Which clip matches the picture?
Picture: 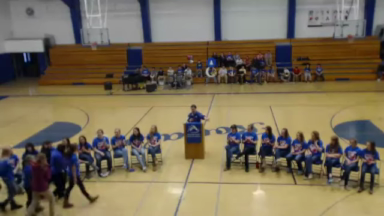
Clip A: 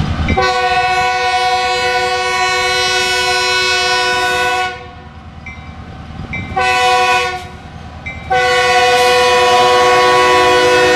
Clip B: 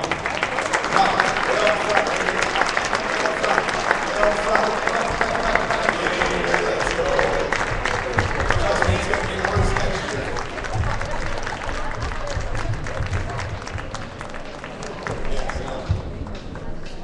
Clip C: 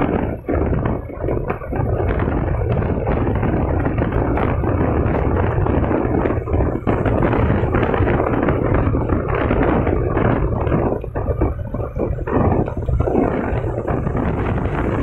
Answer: B